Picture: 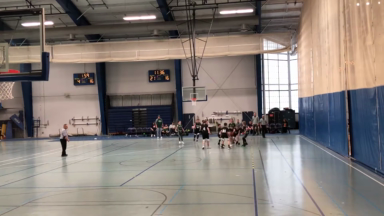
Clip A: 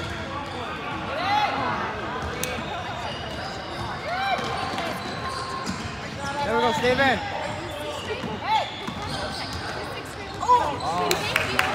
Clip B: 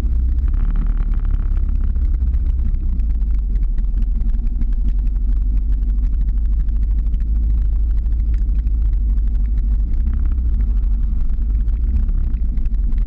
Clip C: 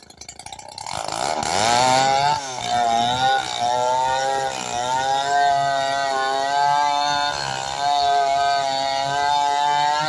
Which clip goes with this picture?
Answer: A